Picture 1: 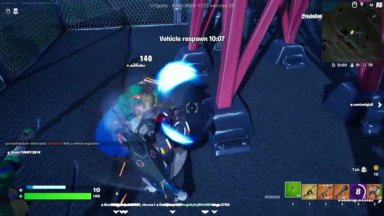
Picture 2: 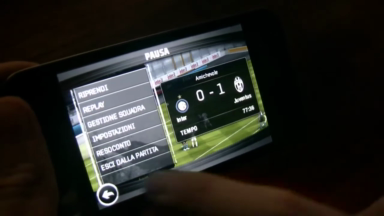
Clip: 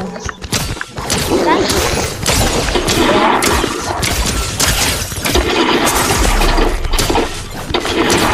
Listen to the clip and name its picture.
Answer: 1